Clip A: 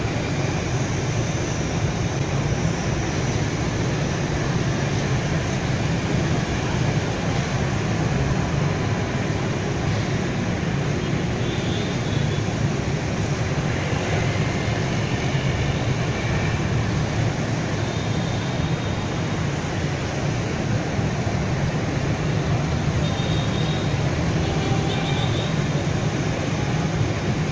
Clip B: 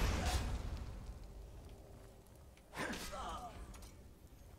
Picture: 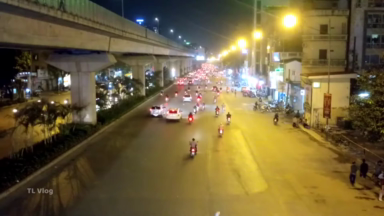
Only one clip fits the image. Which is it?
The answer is A